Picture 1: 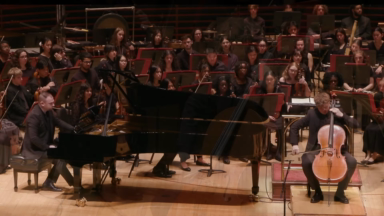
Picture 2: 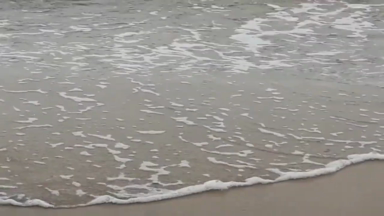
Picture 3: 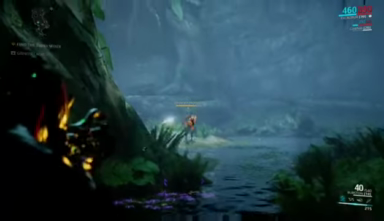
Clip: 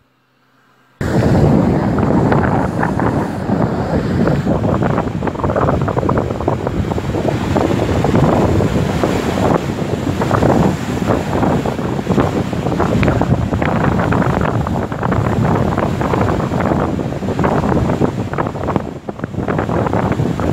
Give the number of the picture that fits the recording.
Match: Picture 2